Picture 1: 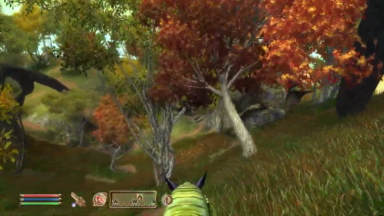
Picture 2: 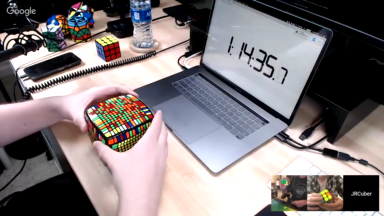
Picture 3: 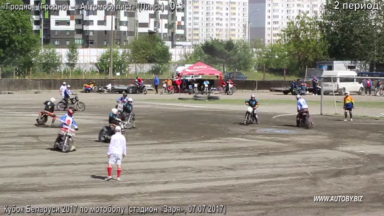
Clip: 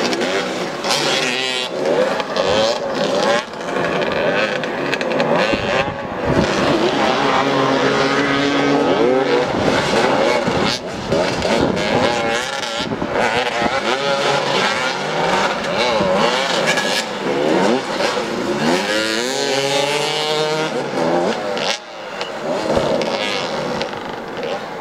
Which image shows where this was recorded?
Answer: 3